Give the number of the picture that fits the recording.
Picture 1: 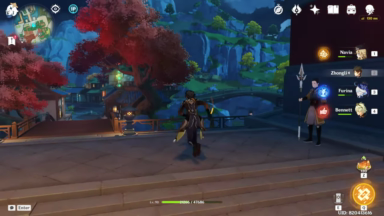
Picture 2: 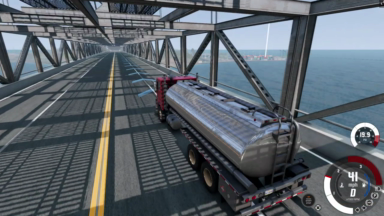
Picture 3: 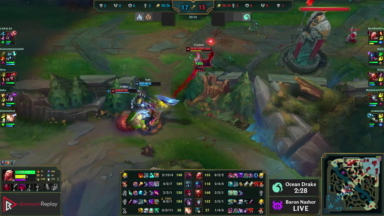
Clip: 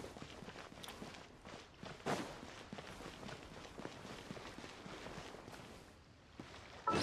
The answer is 1